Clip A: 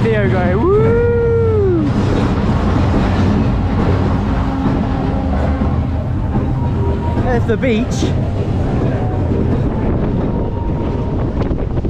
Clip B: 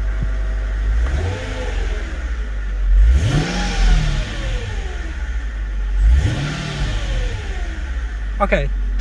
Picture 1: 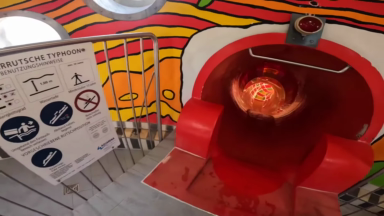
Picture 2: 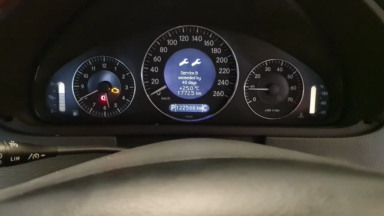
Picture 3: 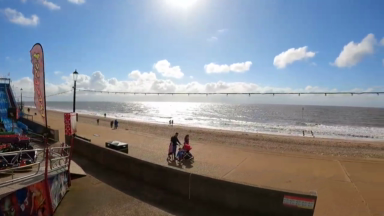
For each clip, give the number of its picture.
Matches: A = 3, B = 2